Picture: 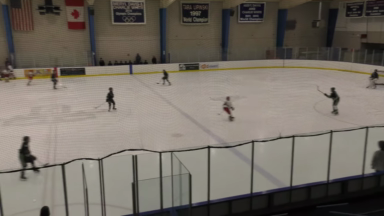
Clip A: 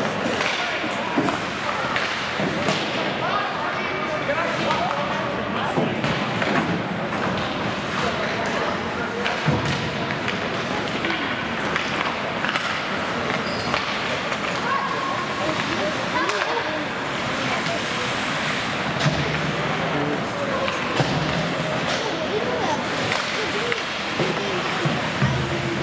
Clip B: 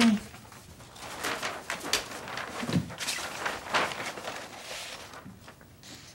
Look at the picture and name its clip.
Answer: A